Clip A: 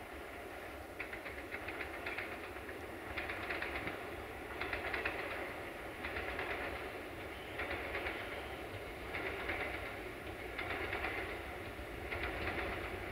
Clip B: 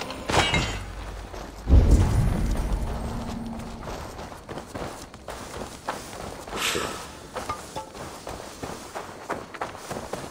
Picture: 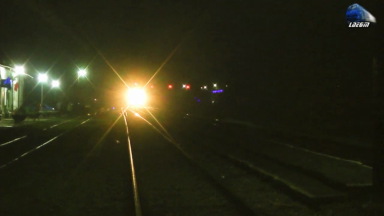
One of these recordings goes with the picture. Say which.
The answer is A